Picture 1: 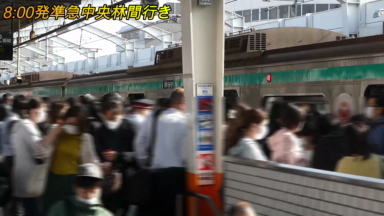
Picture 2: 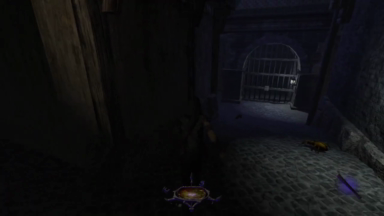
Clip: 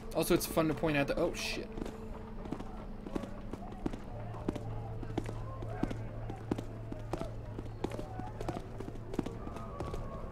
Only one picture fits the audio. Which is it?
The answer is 2